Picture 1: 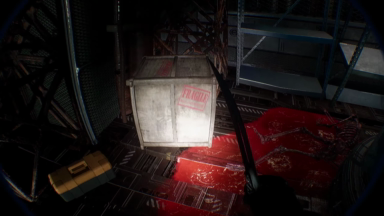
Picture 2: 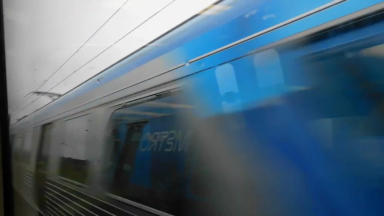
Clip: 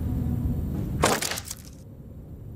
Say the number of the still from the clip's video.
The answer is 1